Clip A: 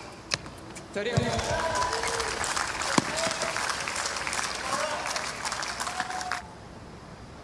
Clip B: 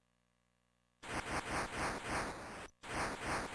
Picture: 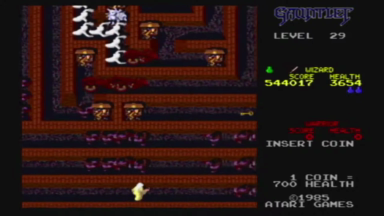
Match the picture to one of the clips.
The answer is B